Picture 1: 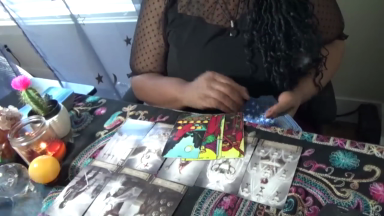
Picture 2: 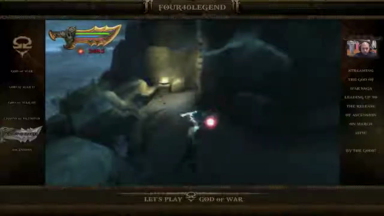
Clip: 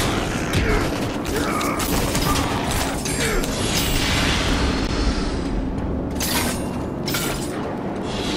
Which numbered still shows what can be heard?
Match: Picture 2